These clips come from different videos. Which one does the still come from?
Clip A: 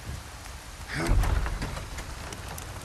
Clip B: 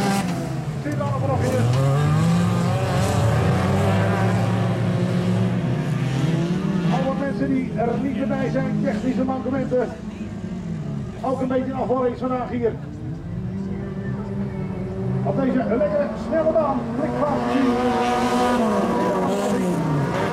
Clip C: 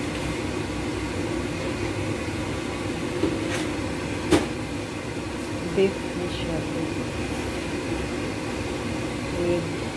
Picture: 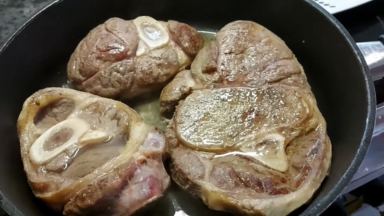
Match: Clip C